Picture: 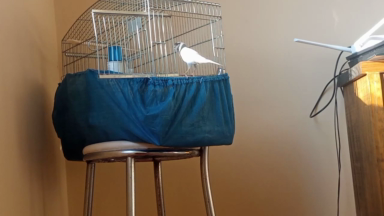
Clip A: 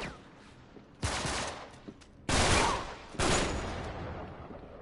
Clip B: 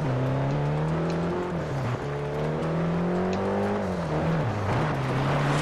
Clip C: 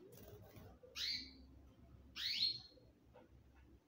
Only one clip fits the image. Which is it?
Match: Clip C